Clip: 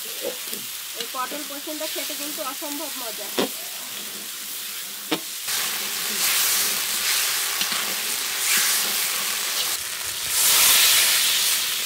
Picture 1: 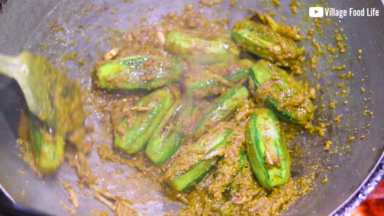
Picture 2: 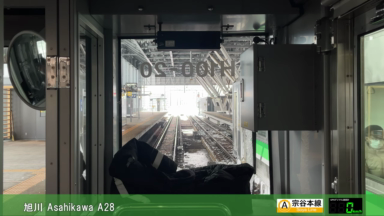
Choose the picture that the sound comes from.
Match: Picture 1